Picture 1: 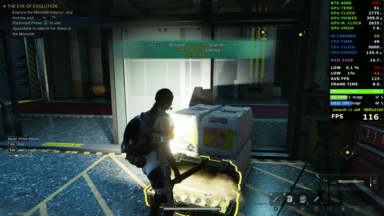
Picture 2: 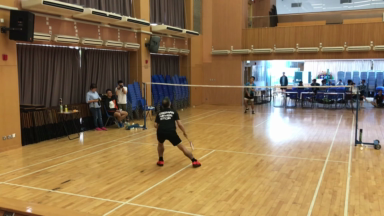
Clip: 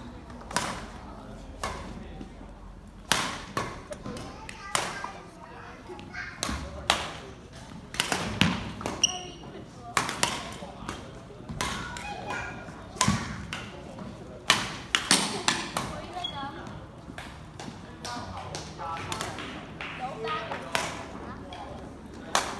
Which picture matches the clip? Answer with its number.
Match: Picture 2